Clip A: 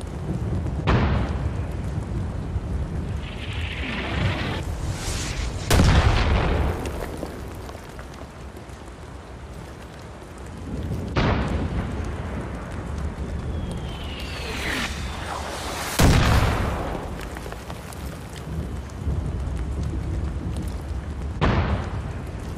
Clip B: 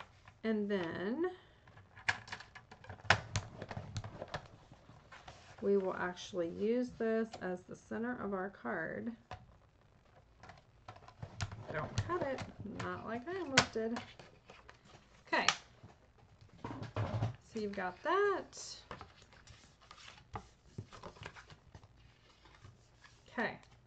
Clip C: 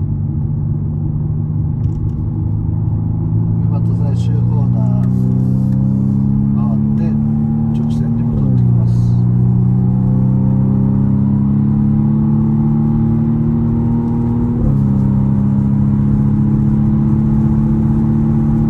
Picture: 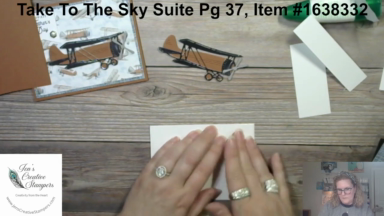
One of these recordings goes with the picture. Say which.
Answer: B